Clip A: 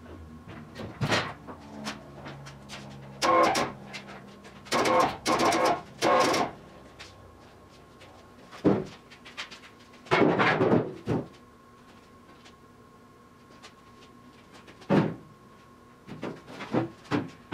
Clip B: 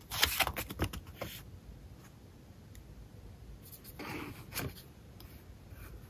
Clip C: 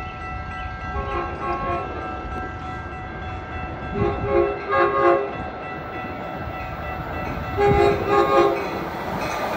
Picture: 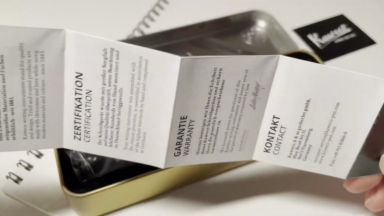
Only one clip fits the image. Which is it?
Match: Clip B